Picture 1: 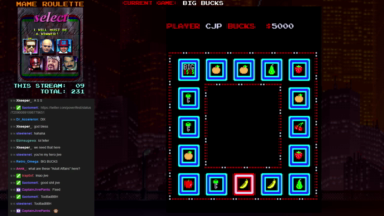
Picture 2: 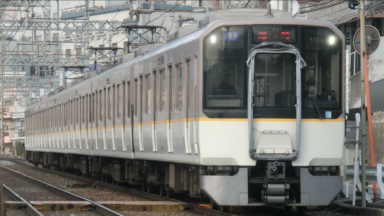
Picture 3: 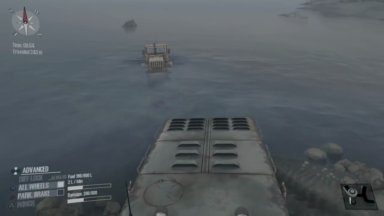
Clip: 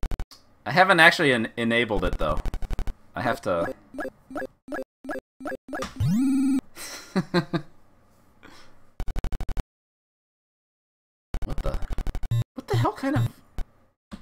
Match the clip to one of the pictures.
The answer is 1